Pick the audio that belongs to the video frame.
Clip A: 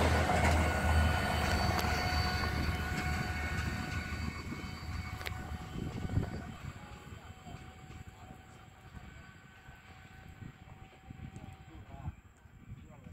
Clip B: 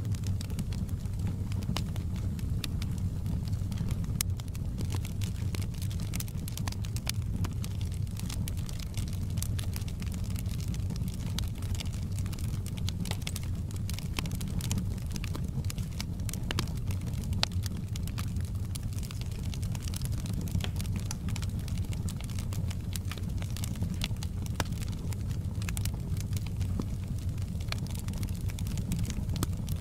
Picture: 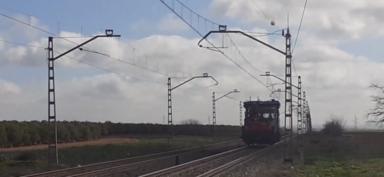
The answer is A